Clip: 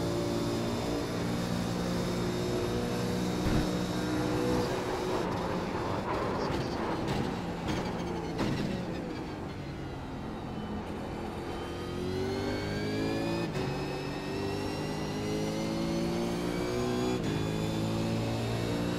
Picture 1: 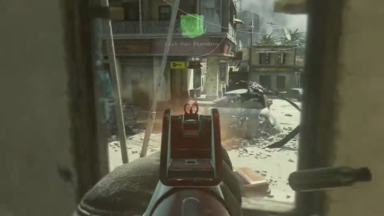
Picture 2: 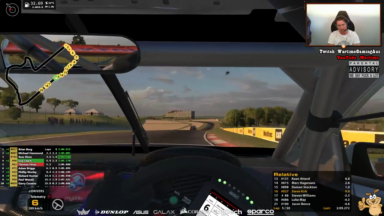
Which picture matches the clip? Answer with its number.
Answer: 2